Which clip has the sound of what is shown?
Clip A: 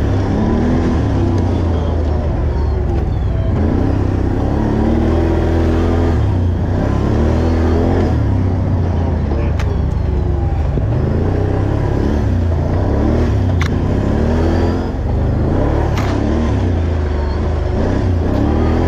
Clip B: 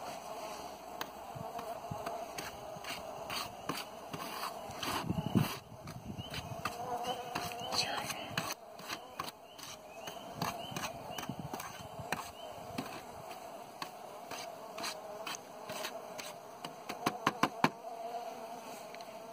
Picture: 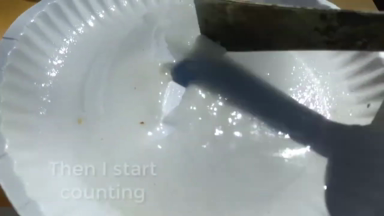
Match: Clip B